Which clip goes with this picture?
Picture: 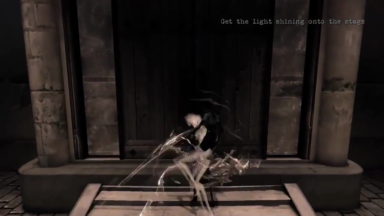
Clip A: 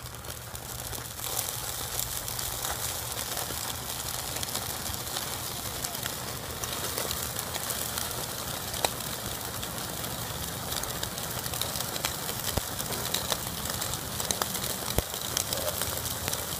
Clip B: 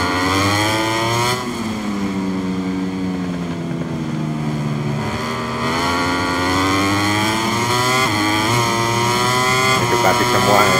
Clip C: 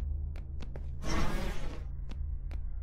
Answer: C